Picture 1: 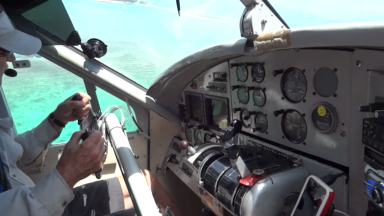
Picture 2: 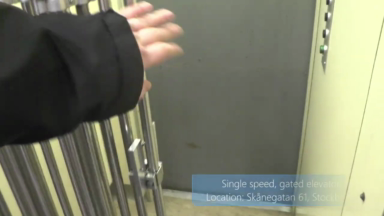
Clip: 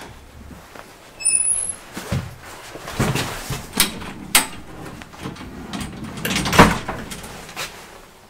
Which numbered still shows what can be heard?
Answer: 2